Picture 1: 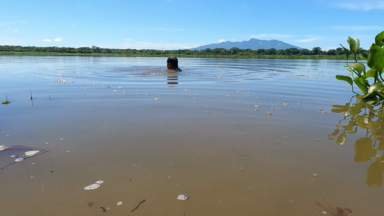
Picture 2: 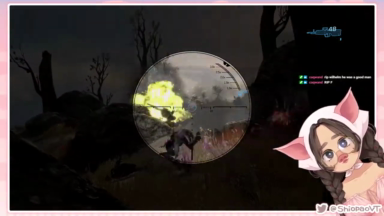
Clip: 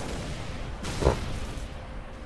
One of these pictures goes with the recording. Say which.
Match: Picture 2